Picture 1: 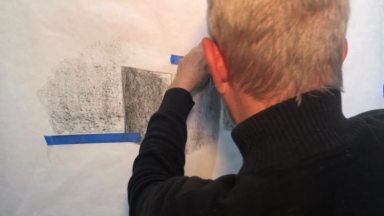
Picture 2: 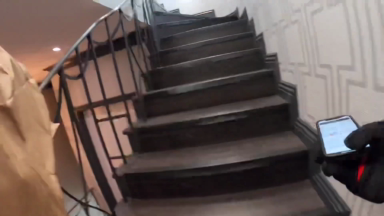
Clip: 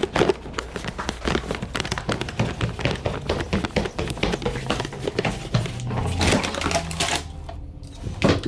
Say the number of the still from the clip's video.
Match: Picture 2